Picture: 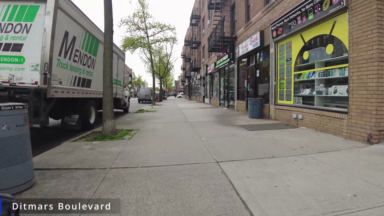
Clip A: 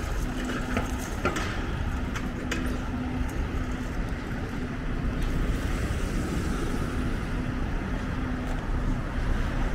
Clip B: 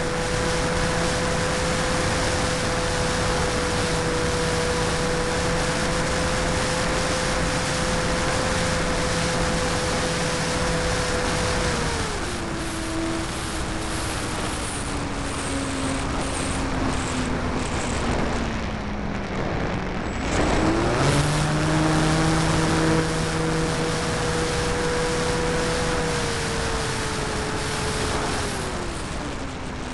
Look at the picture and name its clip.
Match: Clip A